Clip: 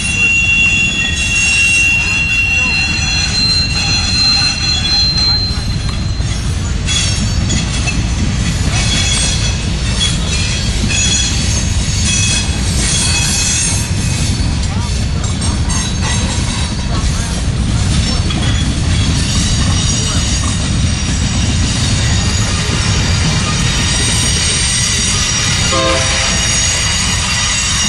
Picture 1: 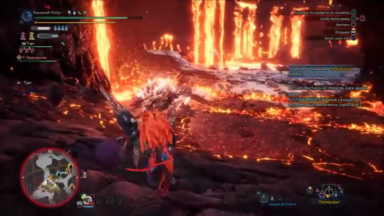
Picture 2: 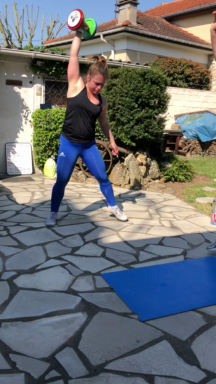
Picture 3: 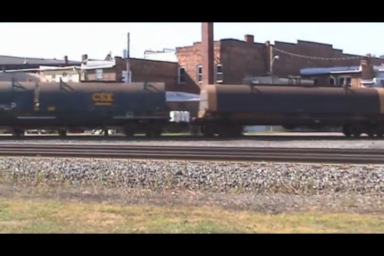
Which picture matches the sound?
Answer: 3